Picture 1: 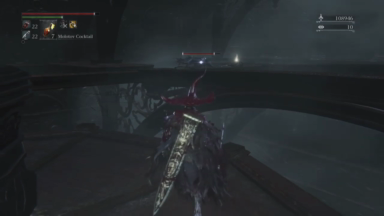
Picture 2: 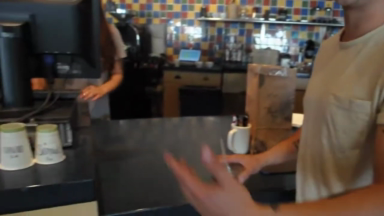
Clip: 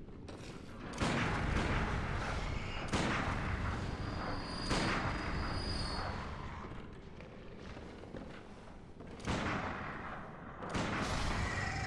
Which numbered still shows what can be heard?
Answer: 1